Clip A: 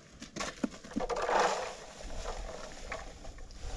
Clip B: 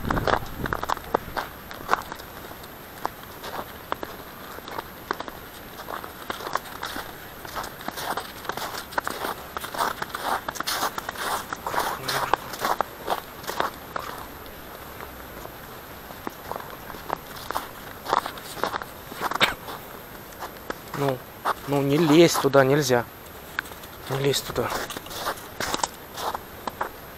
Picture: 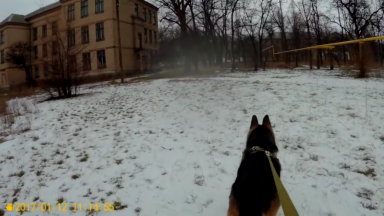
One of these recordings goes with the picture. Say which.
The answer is B